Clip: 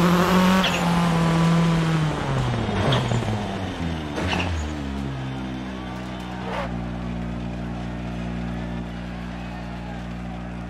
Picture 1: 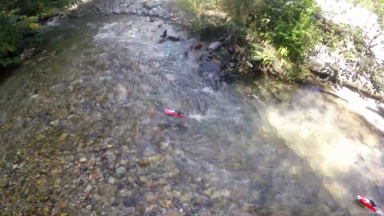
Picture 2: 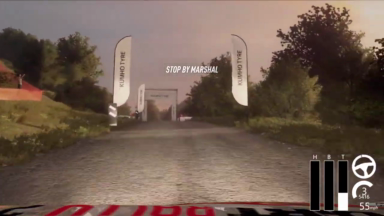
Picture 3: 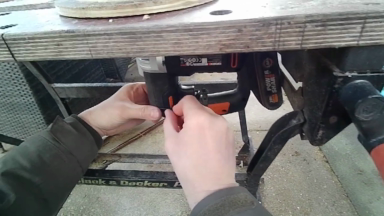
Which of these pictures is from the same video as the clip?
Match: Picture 2